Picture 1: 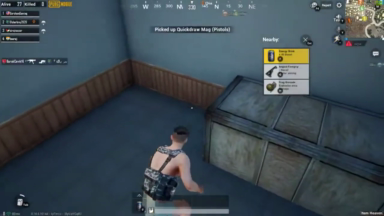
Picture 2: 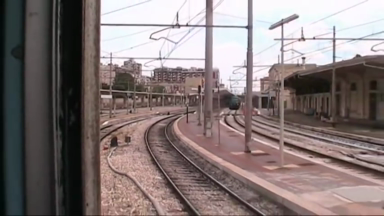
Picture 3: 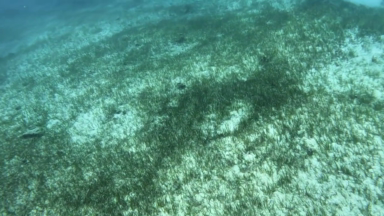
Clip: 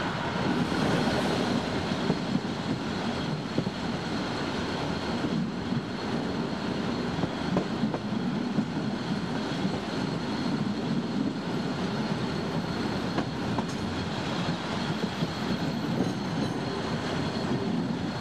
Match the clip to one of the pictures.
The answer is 2